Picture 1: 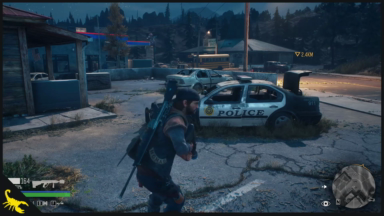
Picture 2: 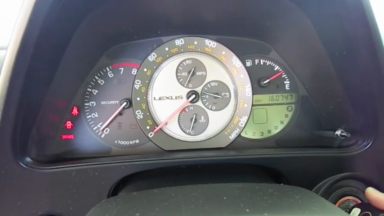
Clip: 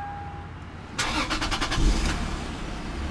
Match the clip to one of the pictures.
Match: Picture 2